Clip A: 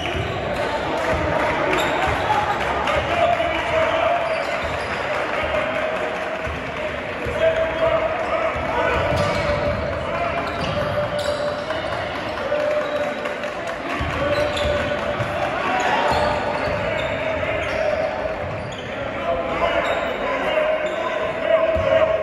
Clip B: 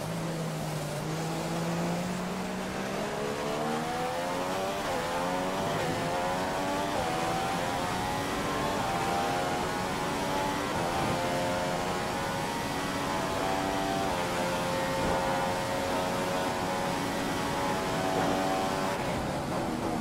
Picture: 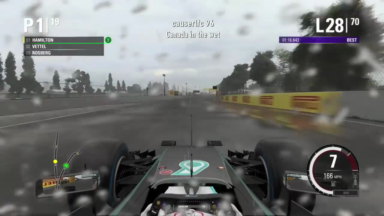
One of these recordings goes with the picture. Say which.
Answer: B